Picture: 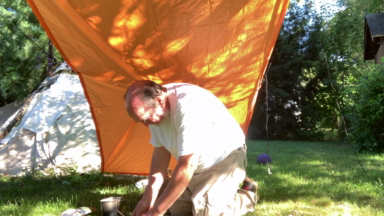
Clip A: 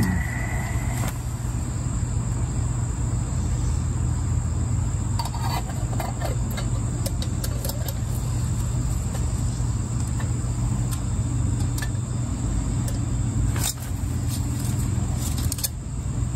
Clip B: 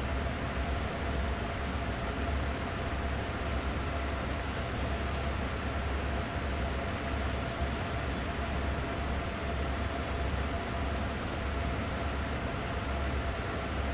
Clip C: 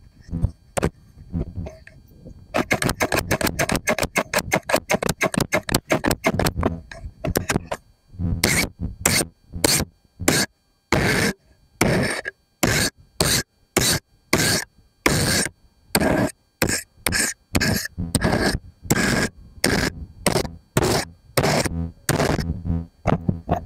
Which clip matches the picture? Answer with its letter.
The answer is A